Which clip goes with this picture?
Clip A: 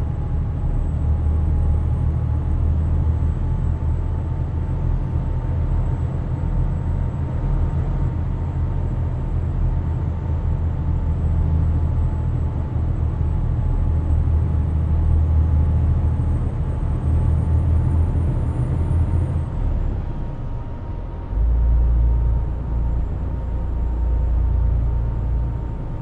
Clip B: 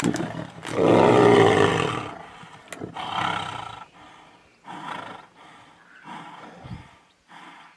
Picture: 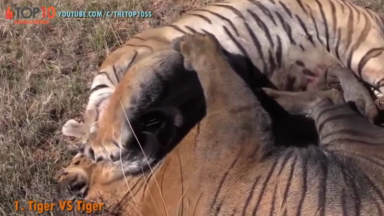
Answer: B